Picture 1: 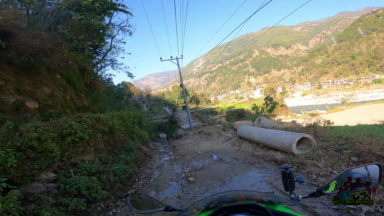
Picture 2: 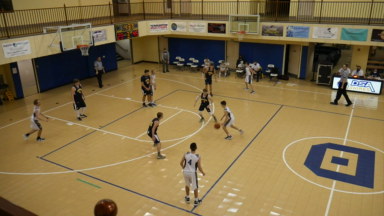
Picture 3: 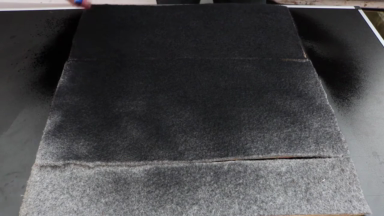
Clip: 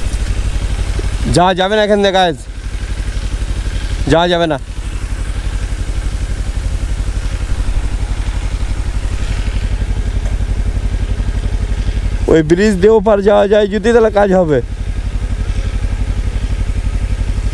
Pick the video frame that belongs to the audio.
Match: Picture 1